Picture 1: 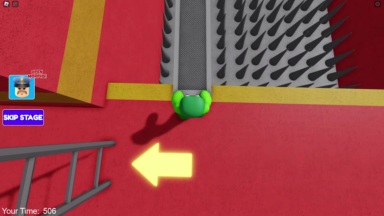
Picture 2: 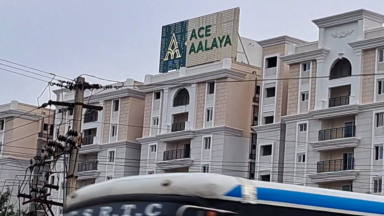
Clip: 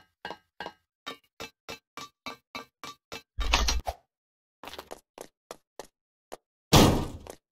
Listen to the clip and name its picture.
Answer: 1